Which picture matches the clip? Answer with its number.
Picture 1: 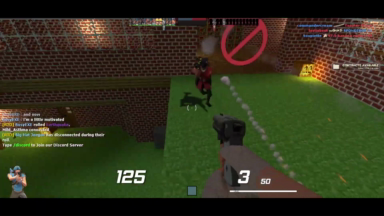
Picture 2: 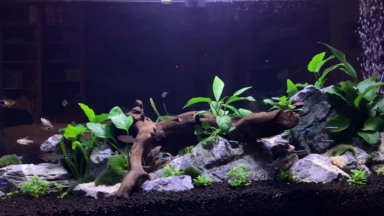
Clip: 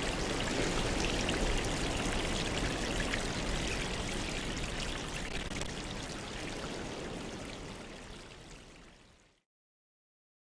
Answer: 2